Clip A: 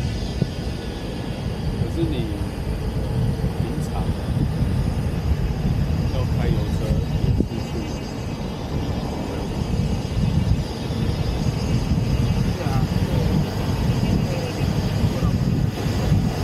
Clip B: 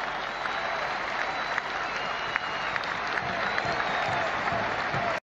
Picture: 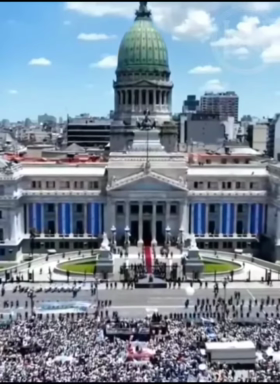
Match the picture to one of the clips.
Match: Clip B